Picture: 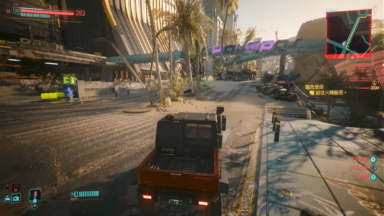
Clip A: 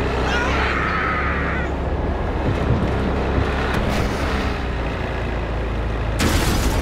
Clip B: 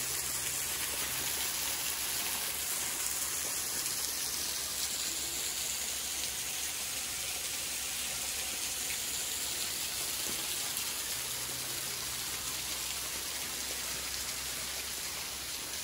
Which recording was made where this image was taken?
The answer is A